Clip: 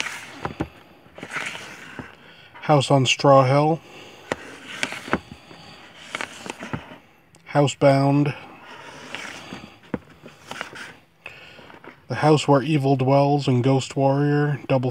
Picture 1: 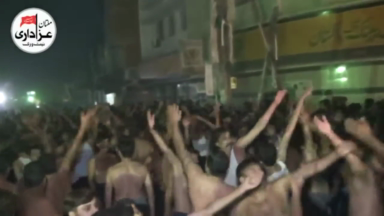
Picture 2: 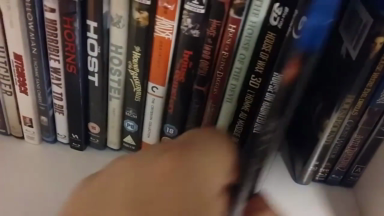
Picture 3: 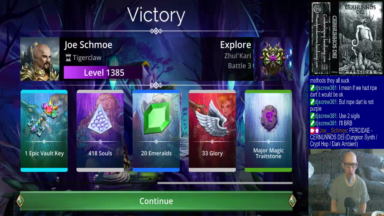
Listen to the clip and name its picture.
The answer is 2